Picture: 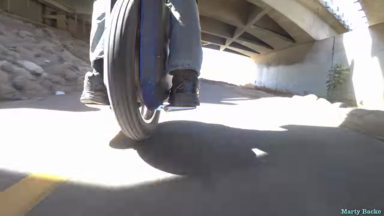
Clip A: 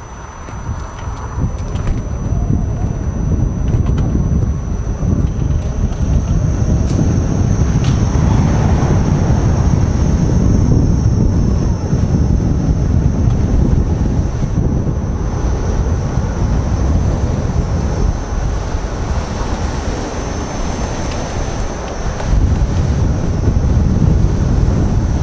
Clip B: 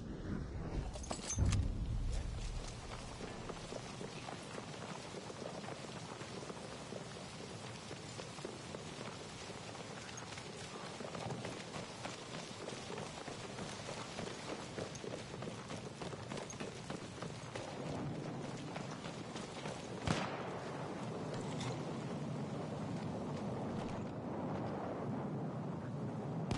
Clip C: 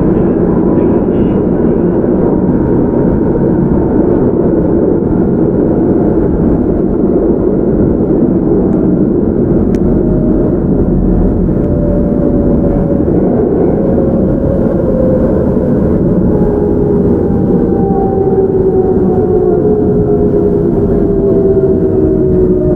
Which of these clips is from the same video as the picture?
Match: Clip A